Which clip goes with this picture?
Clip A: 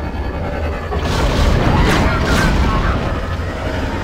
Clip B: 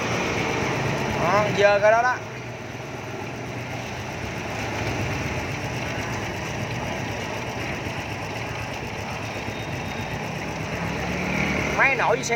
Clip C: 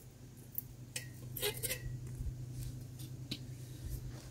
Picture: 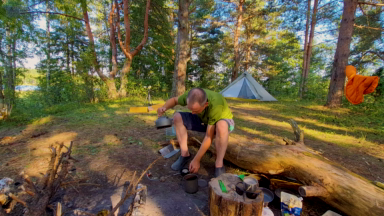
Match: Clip C